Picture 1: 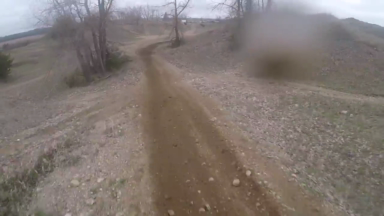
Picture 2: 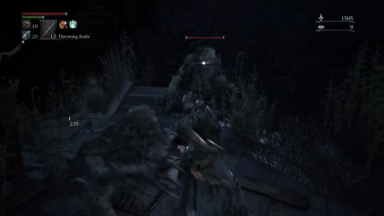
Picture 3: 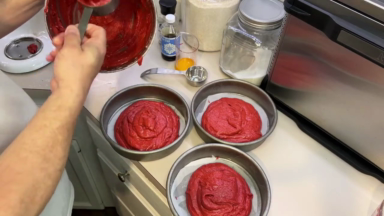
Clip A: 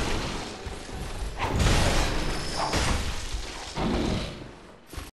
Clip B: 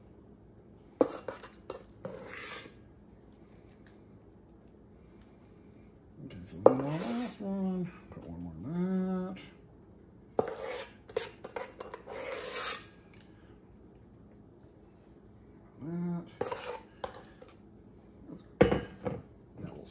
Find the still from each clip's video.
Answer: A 2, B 3